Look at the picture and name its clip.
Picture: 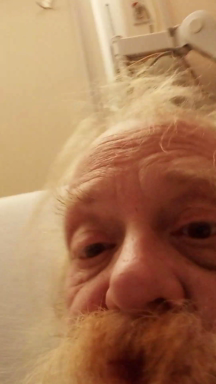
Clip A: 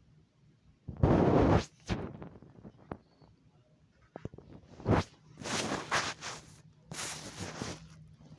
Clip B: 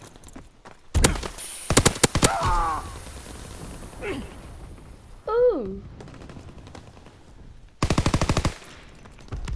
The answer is A